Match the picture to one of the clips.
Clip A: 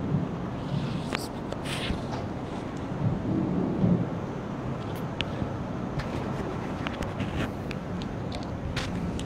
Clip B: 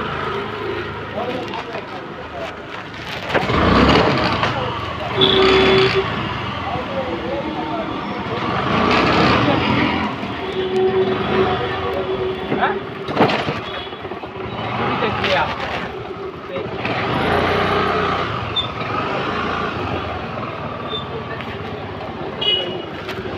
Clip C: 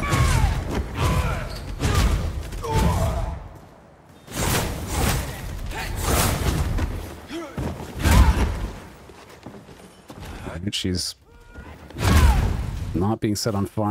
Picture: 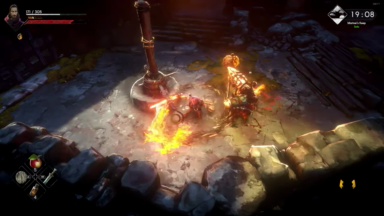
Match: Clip C